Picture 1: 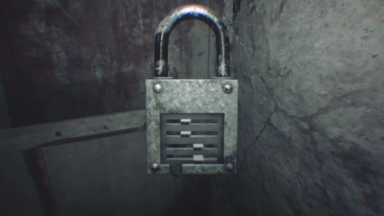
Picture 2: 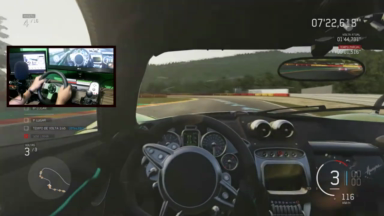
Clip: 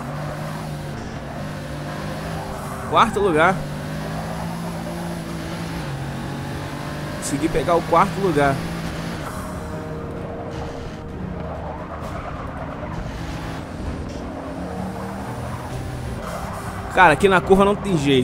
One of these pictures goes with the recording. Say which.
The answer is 2